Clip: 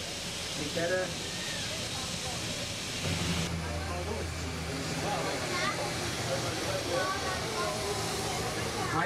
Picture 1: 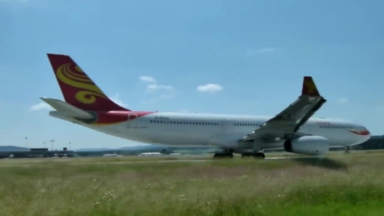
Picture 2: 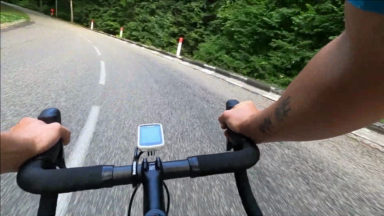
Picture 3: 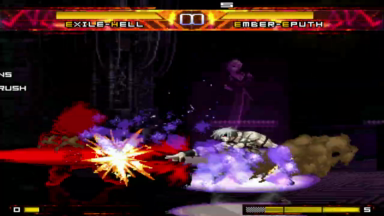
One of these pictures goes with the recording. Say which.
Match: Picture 1